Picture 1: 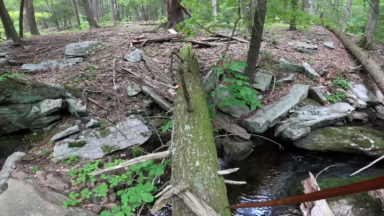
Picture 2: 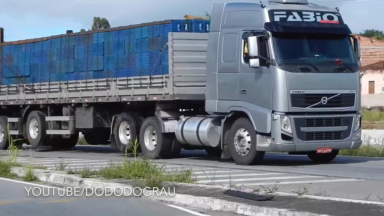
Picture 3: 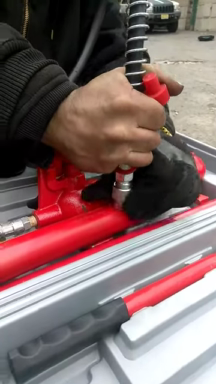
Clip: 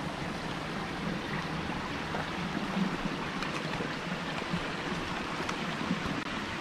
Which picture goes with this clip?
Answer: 1